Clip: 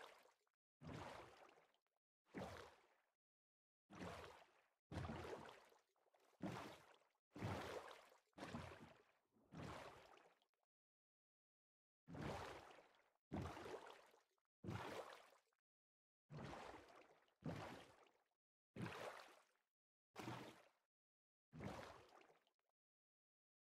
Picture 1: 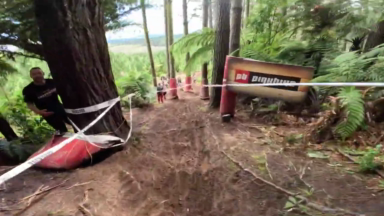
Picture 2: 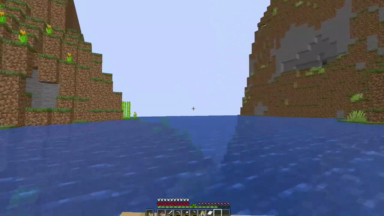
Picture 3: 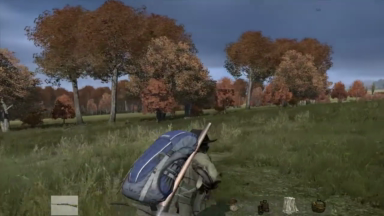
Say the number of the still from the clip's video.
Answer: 2